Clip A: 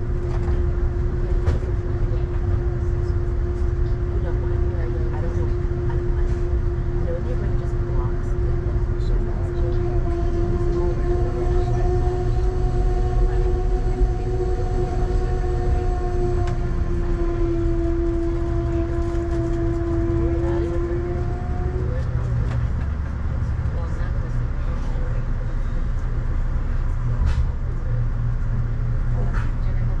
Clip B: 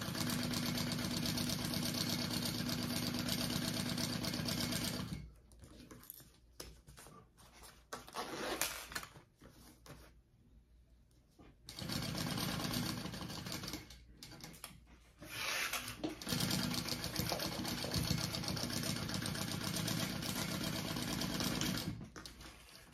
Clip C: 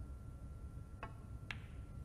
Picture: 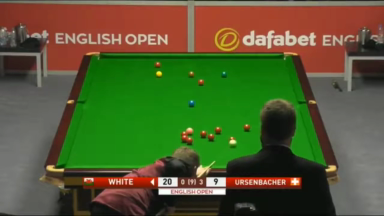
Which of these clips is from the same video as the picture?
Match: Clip C